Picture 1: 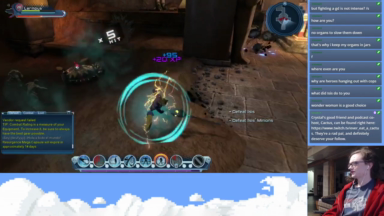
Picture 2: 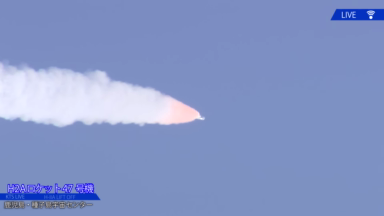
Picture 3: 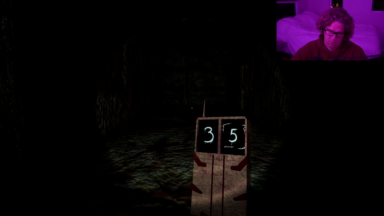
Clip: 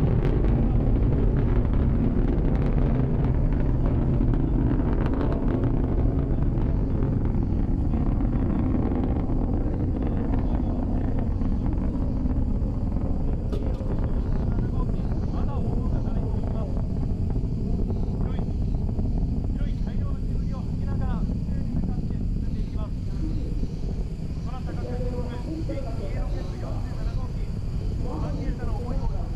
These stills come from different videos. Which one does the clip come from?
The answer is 2